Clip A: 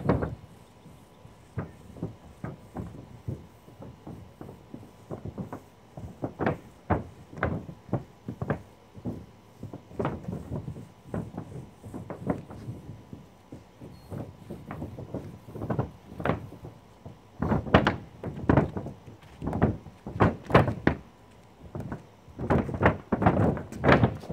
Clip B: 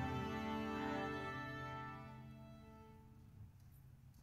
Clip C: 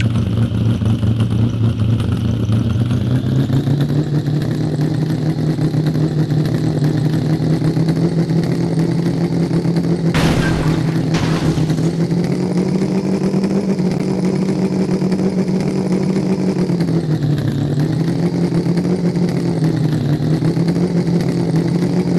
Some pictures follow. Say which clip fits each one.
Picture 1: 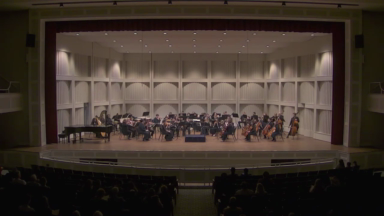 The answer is B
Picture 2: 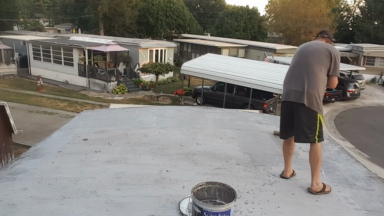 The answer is A